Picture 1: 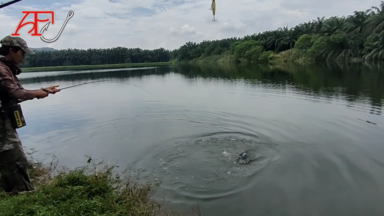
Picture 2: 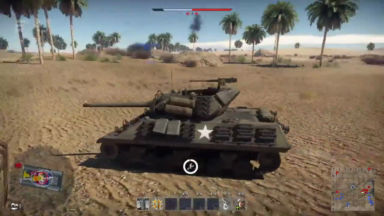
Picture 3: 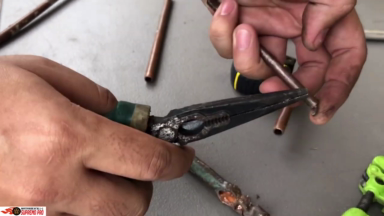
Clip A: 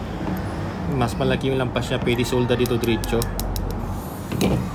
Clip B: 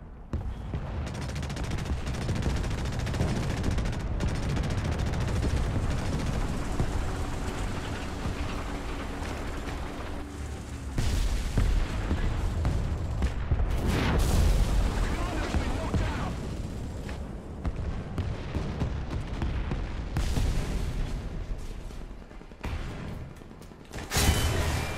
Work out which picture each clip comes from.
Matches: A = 3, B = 2